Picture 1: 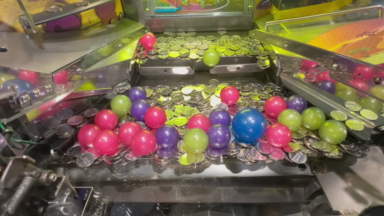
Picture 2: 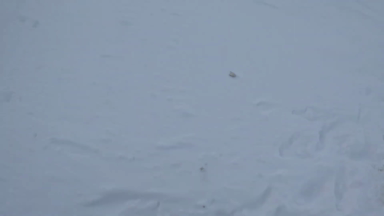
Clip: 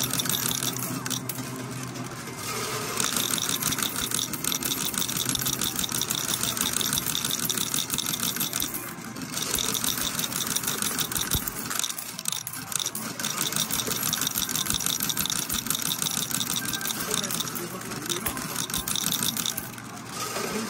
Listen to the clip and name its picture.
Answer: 1